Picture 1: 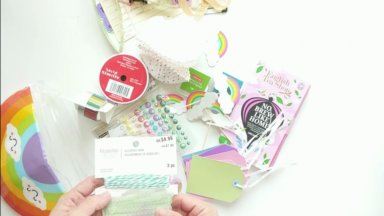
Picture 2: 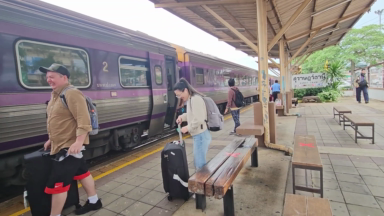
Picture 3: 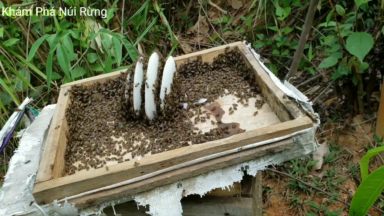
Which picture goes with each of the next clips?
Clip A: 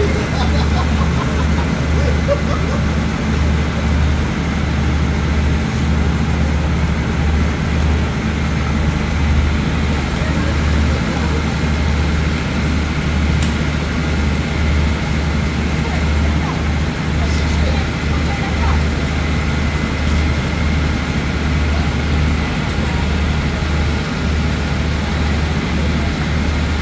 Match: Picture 2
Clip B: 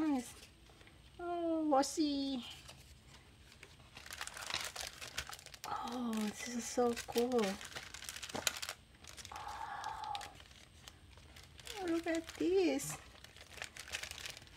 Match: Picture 1